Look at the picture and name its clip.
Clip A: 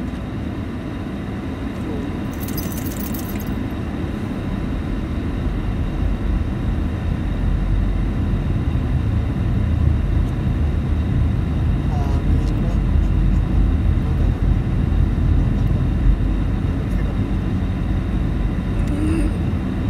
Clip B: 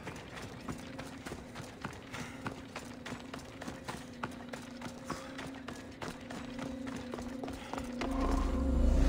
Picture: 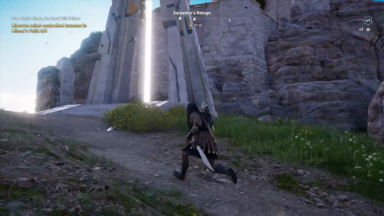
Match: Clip B